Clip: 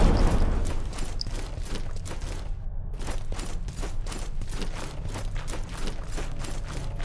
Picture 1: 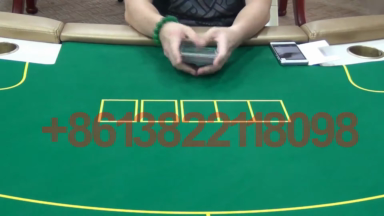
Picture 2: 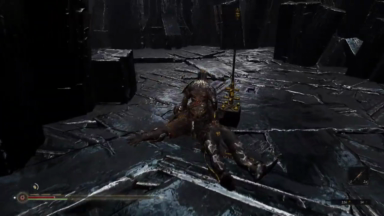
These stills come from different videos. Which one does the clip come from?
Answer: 2